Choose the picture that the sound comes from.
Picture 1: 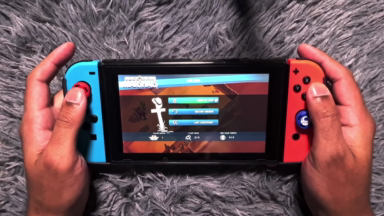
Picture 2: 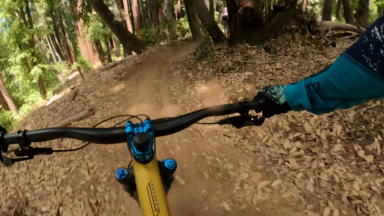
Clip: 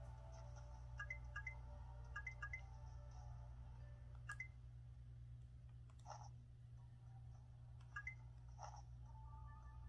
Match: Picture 1